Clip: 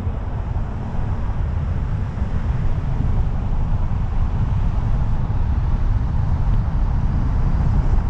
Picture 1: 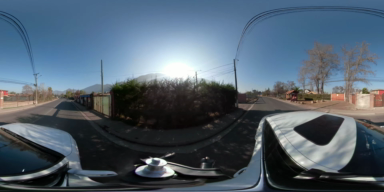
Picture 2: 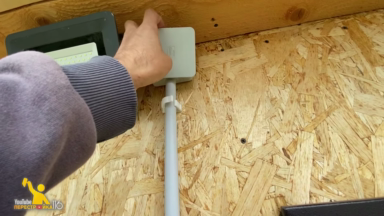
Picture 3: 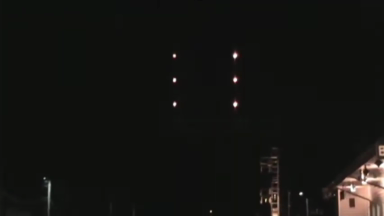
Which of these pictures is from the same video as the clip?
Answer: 1